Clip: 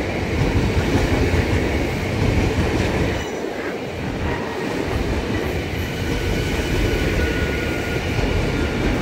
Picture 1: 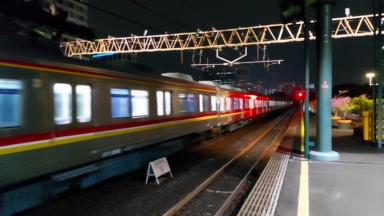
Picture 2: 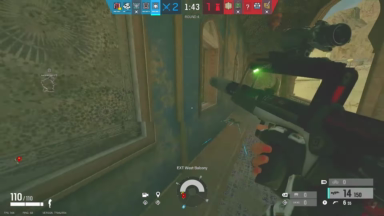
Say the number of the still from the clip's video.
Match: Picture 1